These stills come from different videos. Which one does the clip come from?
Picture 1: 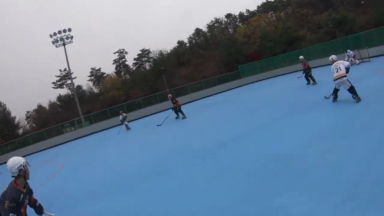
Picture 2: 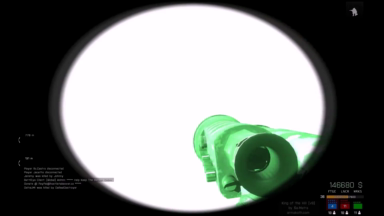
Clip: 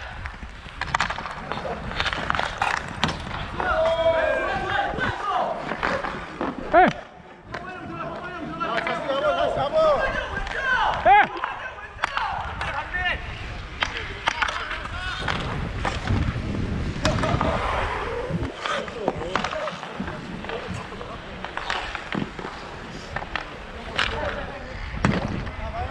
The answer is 1